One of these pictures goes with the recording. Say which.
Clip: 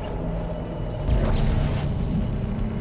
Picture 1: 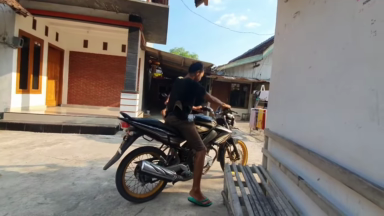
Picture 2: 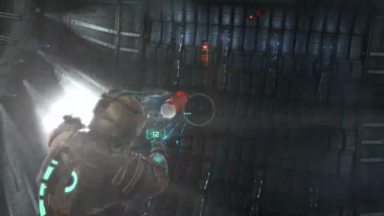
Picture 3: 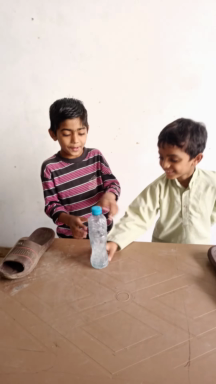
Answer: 2